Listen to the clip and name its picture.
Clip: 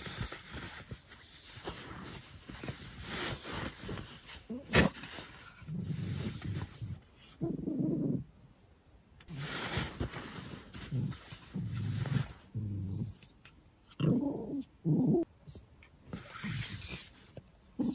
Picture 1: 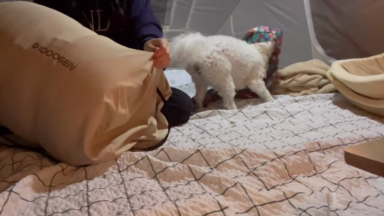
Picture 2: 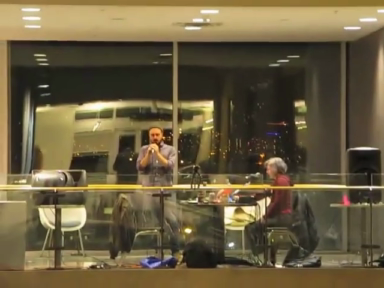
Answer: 1